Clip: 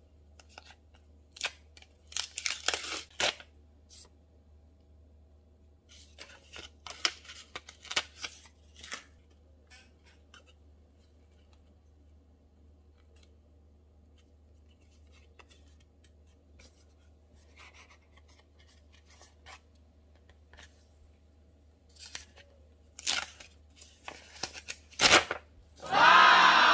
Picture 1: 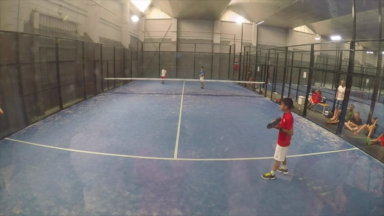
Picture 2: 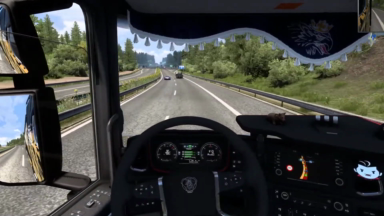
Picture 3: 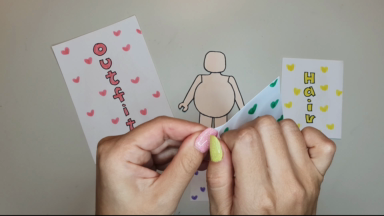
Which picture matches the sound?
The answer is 3